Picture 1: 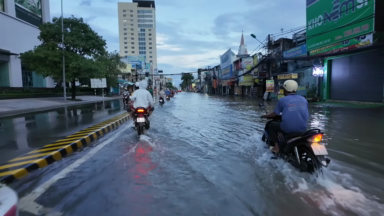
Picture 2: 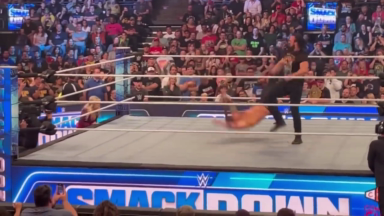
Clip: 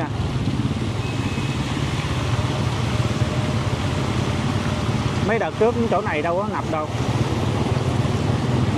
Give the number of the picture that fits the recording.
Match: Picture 1